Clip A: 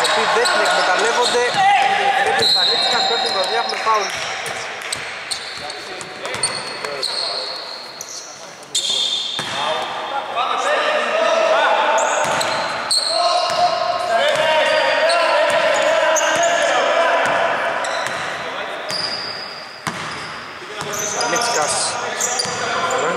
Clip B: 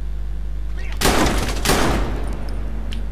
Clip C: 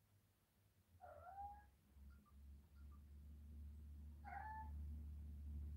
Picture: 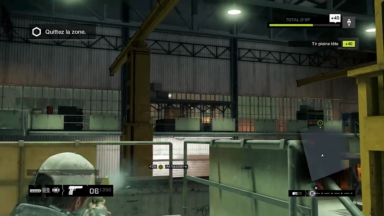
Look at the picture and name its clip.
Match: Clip B